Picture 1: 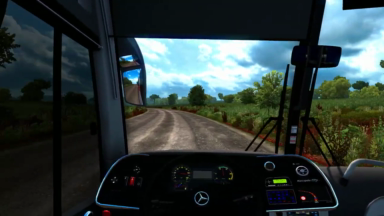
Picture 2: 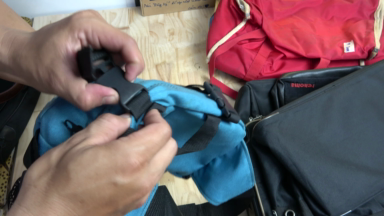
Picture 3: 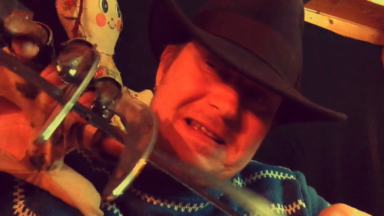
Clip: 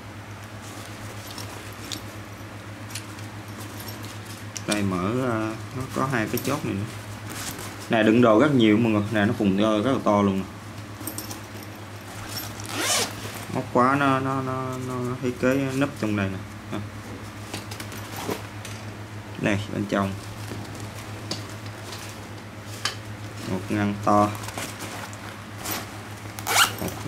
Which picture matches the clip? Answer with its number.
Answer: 2